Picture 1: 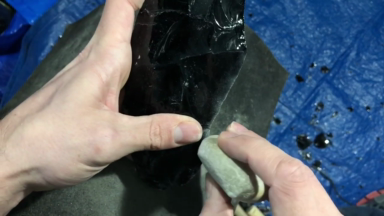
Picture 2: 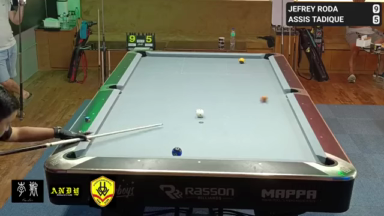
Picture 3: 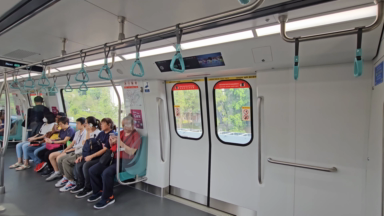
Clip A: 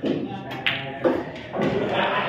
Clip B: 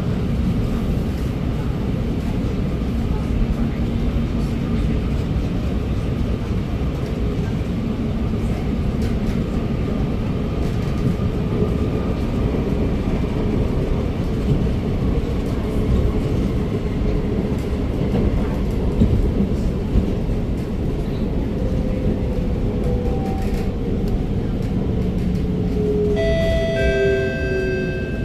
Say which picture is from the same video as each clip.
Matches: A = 2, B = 3